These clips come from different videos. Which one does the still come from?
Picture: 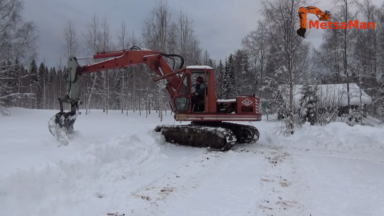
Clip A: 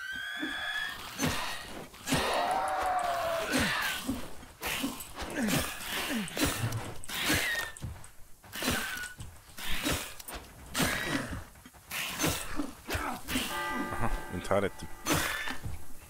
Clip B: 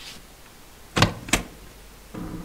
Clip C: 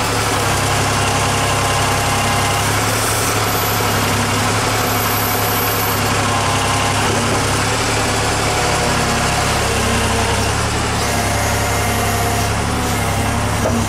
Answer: C